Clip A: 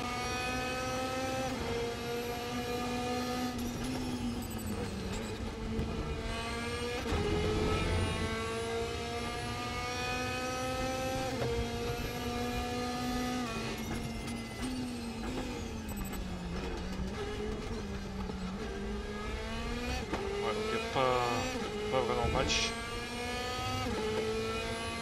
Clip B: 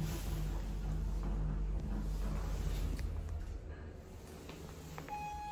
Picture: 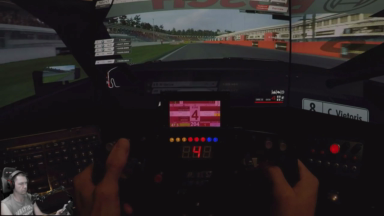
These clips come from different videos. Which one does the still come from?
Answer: A